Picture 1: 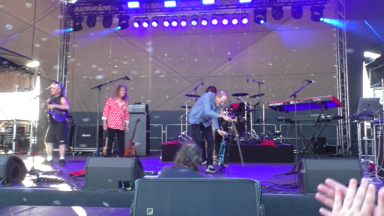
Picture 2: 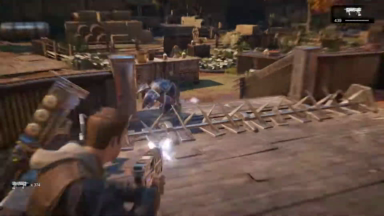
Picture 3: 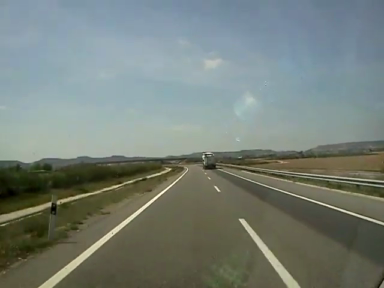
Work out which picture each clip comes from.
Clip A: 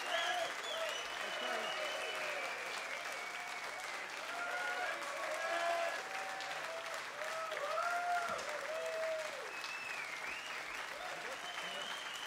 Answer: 1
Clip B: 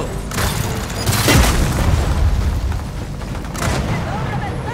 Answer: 2